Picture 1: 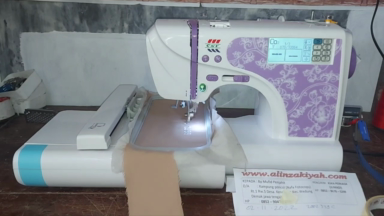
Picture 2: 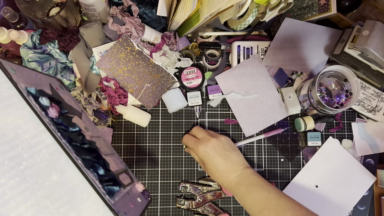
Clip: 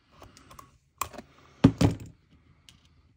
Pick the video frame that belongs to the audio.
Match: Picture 2